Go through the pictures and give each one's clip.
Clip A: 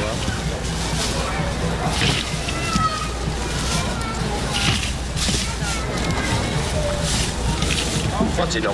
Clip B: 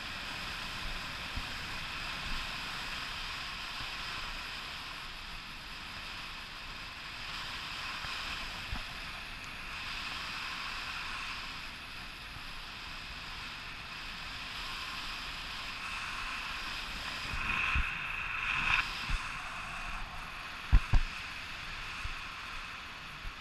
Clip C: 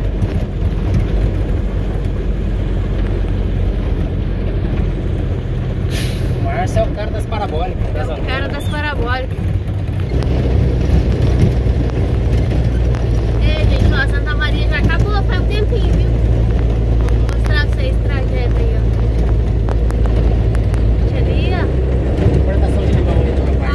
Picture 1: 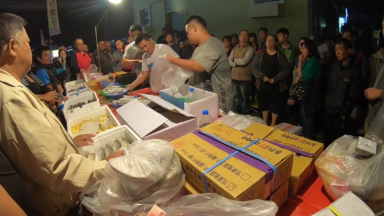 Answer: A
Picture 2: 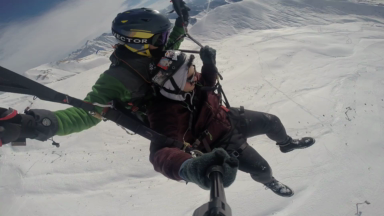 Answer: B